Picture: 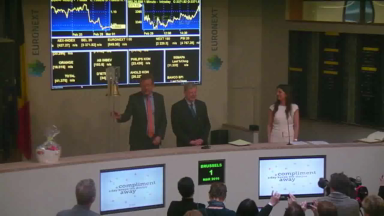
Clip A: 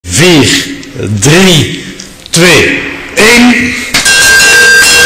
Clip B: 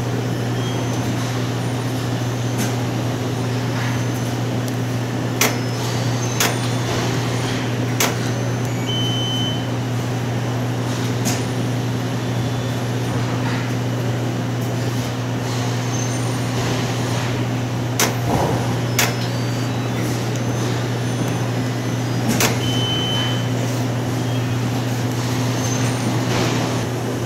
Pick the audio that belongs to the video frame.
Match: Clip A